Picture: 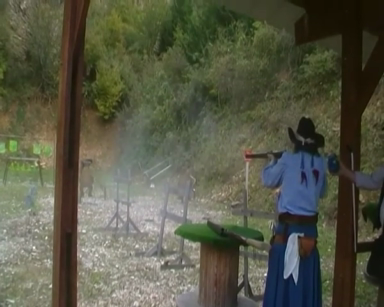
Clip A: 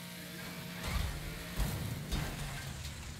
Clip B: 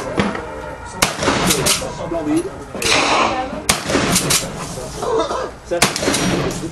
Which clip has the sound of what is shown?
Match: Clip B